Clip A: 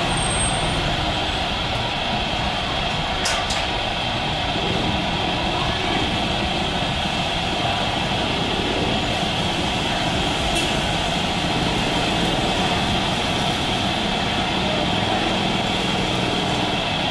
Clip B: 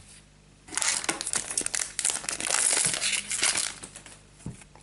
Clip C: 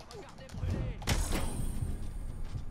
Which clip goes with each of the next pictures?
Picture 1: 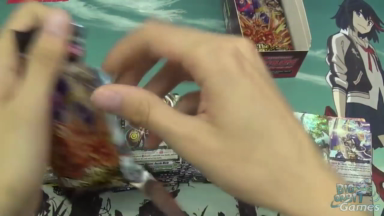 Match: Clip B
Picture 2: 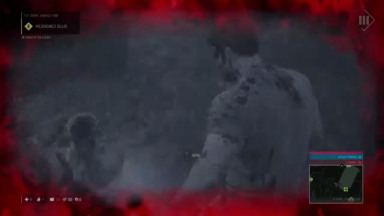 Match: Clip C